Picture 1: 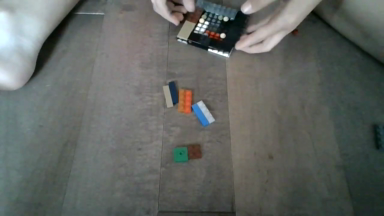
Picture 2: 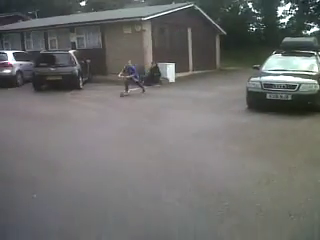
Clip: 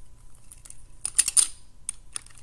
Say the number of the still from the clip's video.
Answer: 1